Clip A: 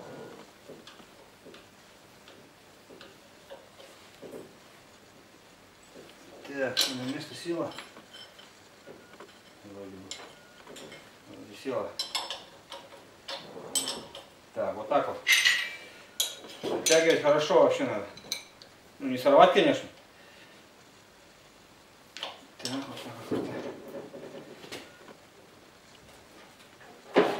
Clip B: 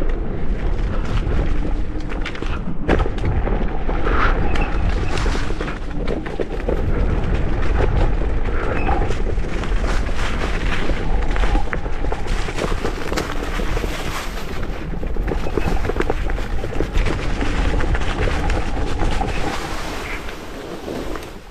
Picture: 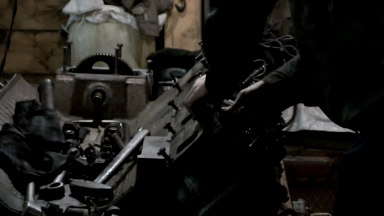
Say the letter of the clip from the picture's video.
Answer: A